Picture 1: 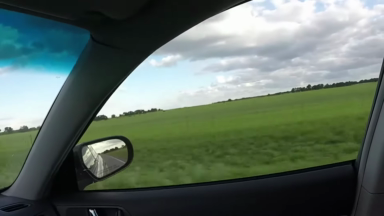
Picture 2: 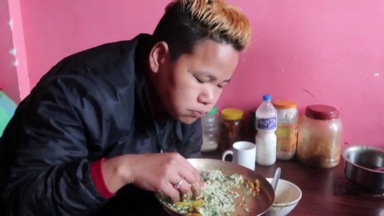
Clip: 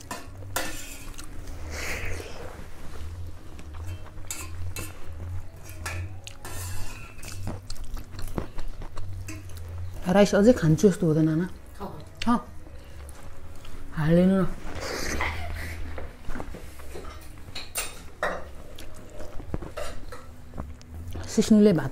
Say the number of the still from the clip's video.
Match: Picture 2